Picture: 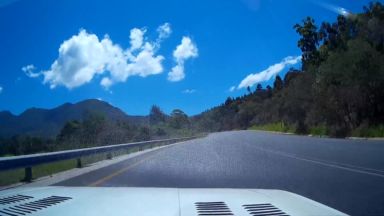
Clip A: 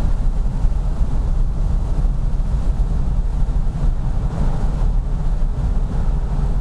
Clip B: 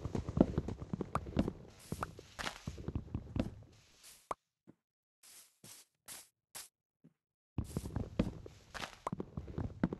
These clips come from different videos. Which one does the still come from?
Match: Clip A